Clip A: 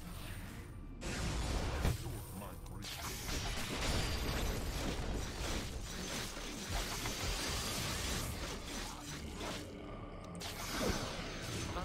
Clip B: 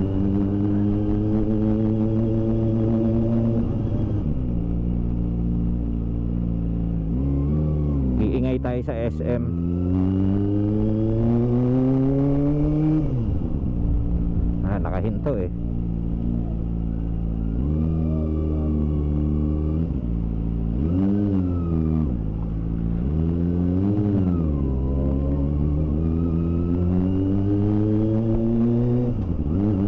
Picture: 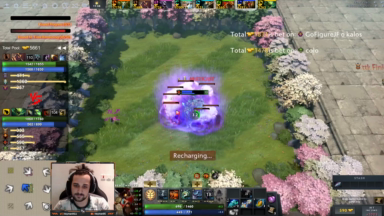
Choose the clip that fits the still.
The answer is A